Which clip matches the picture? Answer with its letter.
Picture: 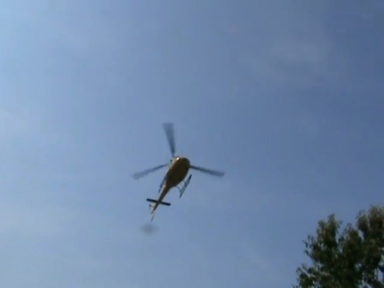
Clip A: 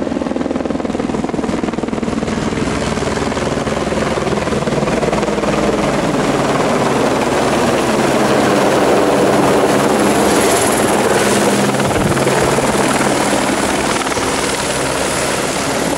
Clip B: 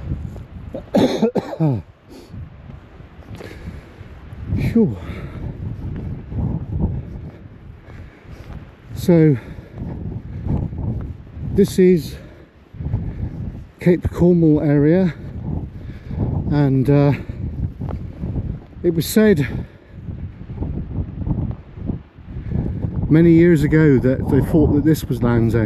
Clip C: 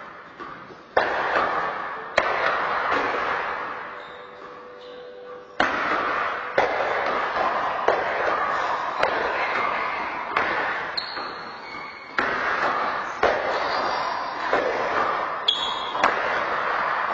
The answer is A